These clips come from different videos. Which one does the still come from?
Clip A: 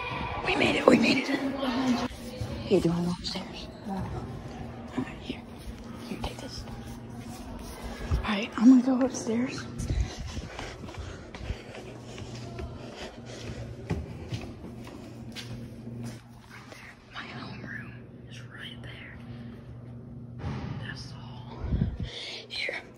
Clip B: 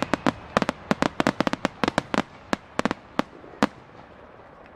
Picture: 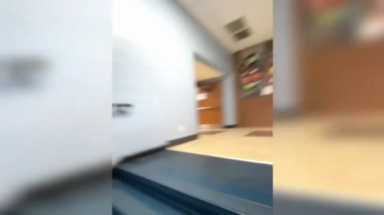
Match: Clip A